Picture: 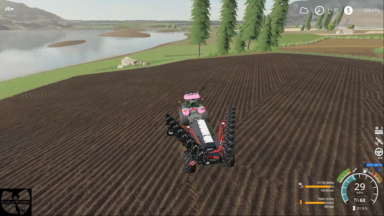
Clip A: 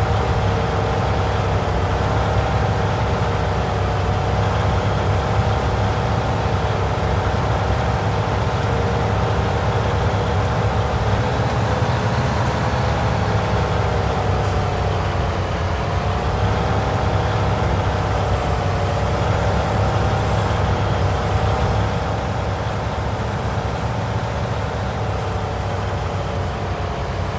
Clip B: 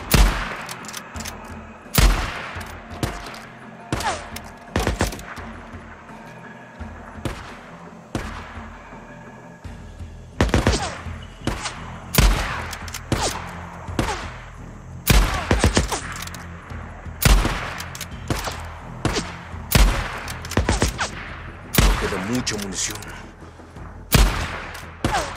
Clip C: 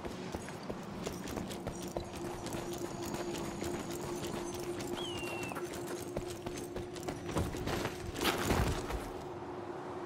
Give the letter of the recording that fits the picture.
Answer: A